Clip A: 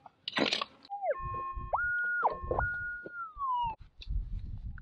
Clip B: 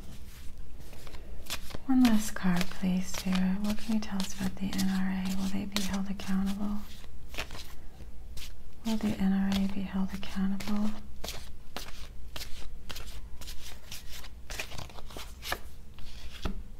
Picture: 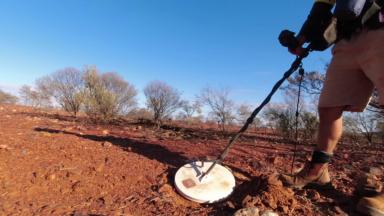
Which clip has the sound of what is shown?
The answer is A